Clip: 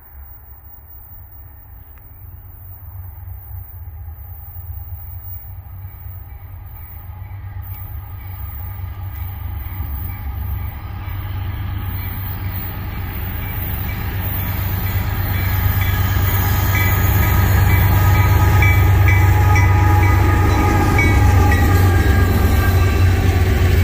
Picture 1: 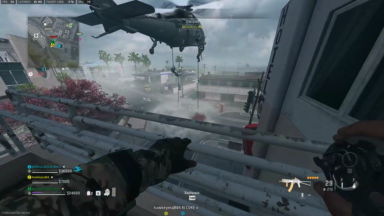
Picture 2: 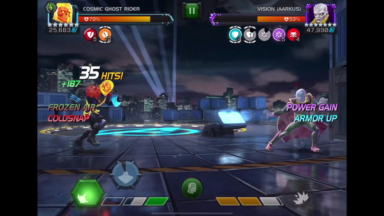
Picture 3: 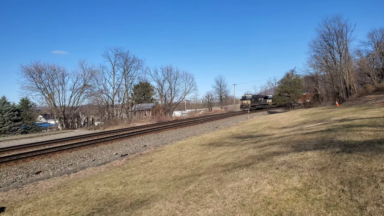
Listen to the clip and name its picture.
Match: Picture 3